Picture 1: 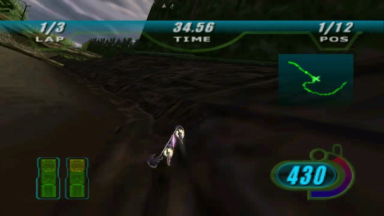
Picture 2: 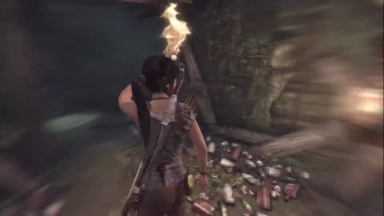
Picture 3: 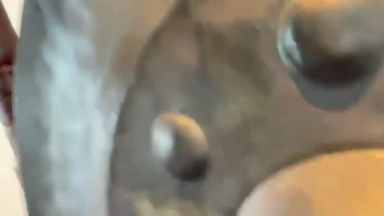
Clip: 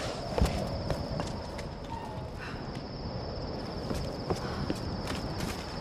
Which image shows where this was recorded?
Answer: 2